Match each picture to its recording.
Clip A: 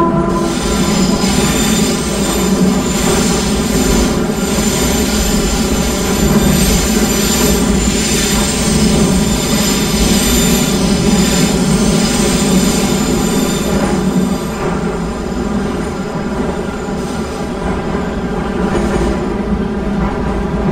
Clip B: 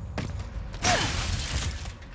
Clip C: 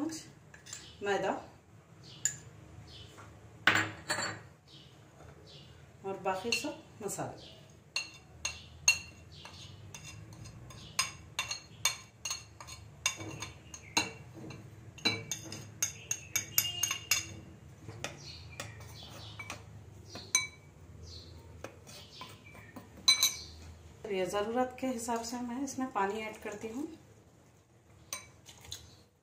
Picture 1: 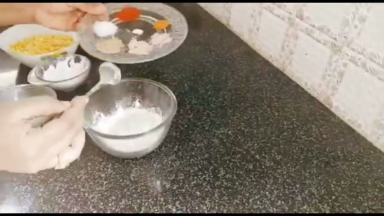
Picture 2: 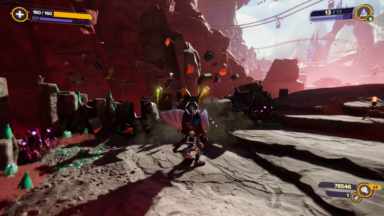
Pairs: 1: C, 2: B